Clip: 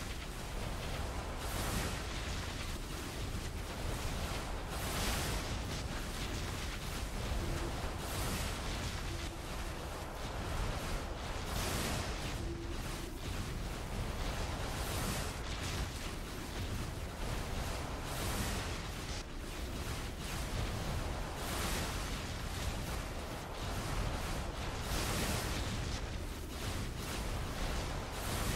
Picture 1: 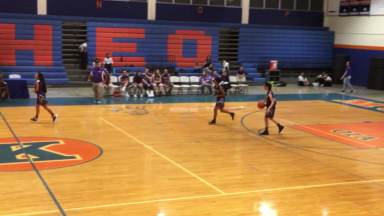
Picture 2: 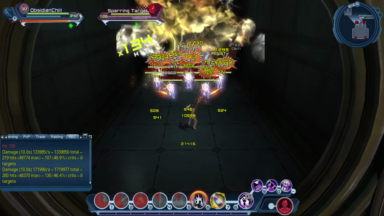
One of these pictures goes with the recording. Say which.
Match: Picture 2